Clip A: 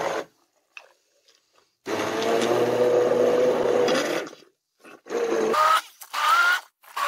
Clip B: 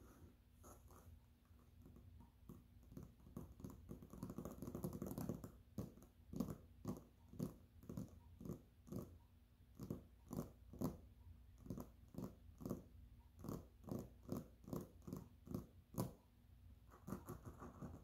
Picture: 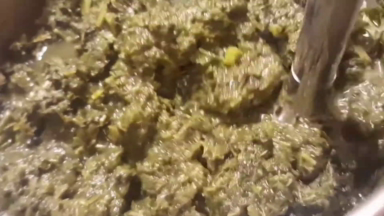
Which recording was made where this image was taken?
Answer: A